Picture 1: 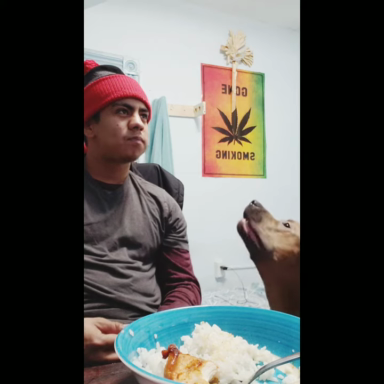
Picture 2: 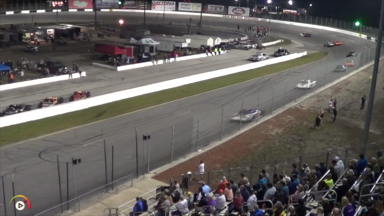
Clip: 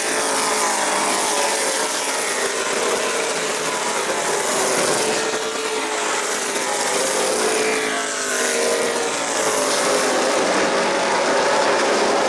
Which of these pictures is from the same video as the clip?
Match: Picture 2